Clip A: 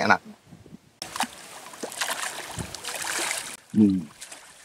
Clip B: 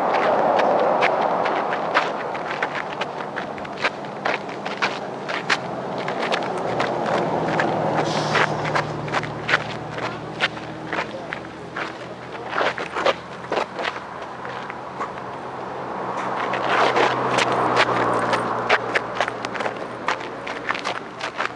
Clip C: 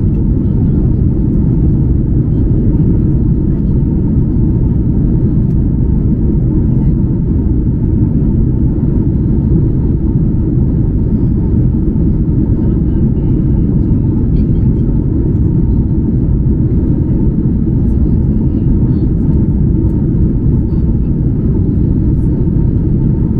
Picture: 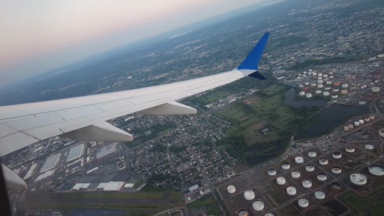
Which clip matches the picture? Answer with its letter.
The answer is C